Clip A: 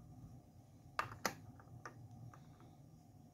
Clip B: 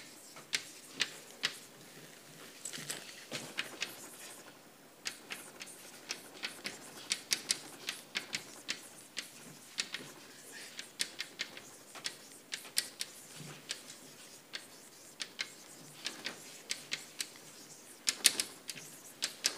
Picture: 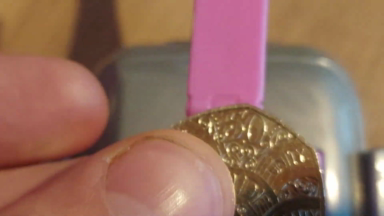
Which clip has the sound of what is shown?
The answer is A